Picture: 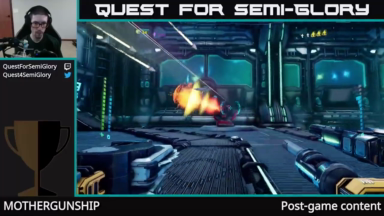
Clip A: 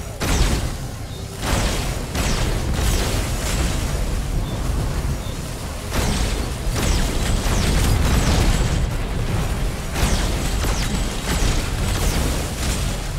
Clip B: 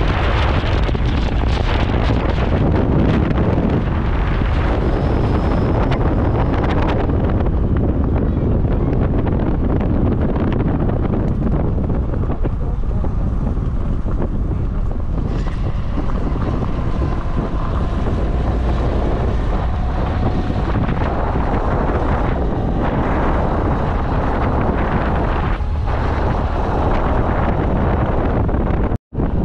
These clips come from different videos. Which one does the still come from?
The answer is A